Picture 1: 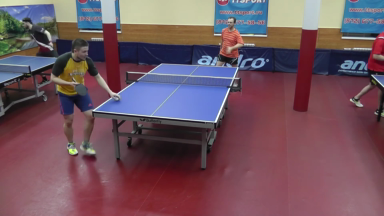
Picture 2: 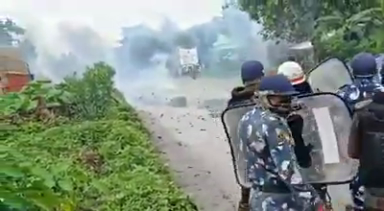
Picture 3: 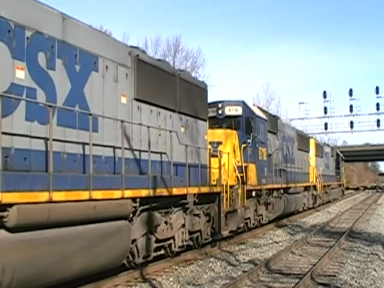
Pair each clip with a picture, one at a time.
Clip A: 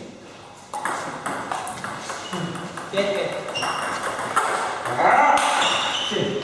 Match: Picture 1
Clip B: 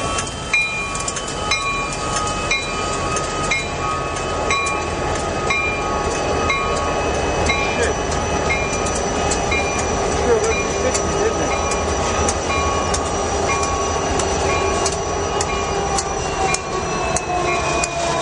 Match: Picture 3